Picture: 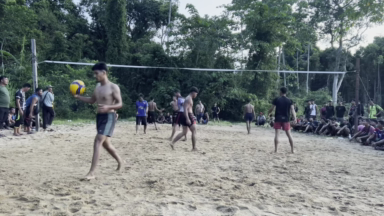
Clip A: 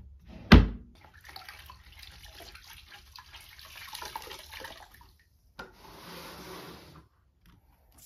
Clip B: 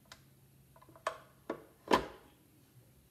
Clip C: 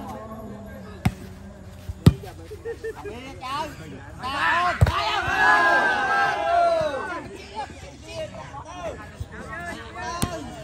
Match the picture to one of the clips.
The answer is C